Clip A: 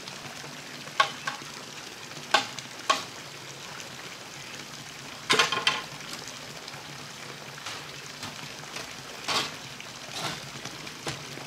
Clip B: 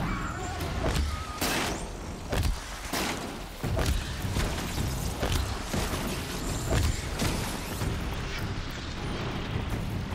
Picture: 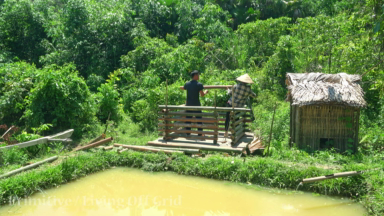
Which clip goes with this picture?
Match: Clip A